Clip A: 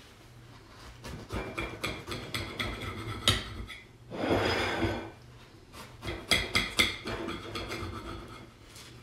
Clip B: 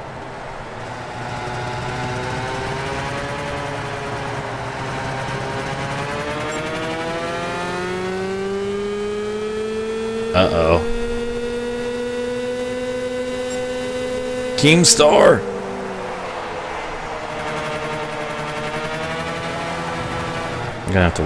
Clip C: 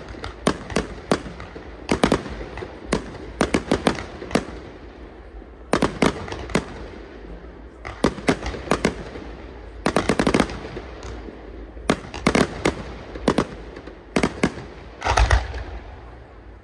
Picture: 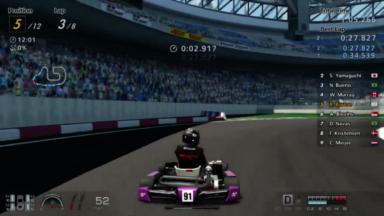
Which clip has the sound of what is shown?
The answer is B